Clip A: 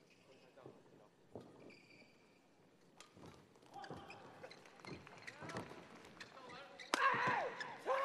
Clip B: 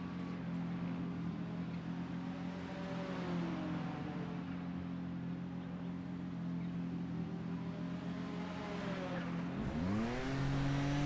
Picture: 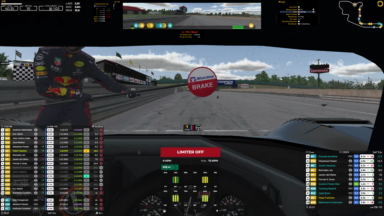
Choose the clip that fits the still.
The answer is B